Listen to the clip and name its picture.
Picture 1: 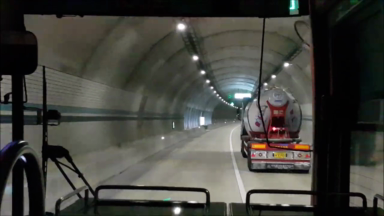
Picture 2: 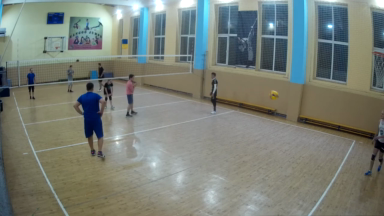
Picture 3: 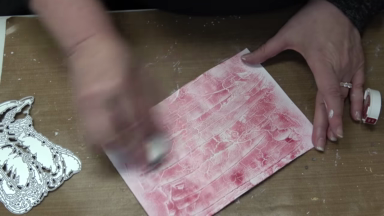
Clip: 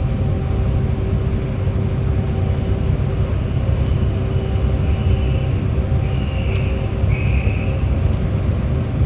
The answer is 1